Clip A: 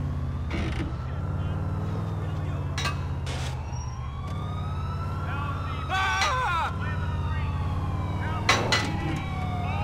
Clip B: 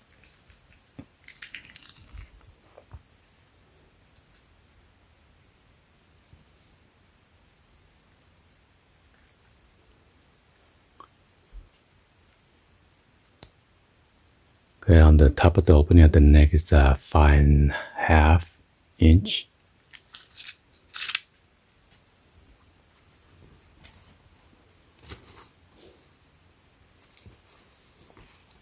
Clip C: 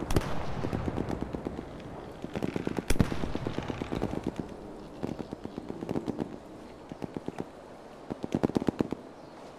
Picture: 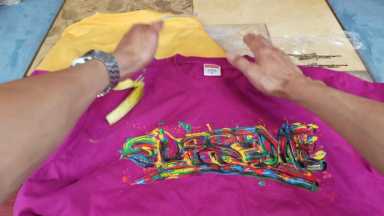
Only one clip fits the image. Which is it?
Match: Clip B